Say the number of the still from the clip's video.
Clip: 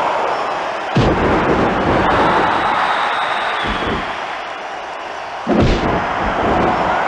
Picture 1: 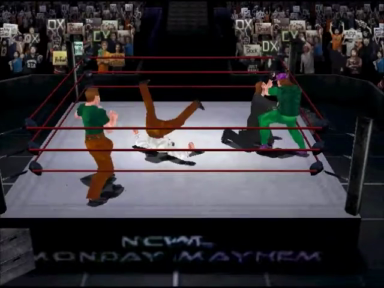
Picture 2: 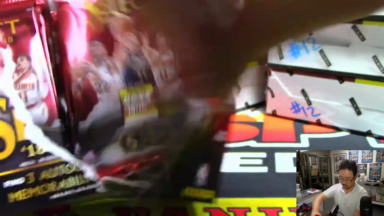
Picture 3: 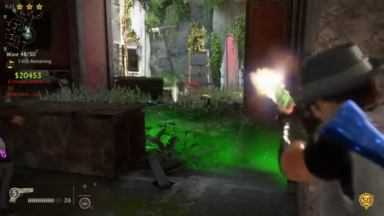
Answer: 1